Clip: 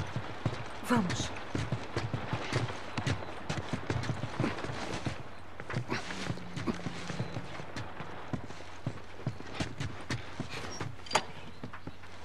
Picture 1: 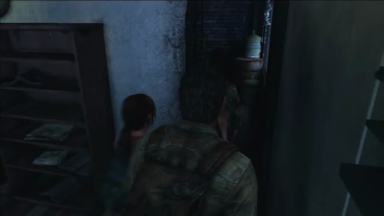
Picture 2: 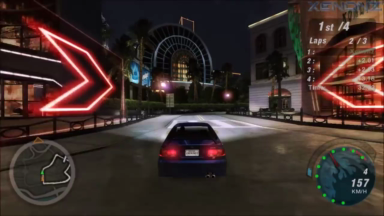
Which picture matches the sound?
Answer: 1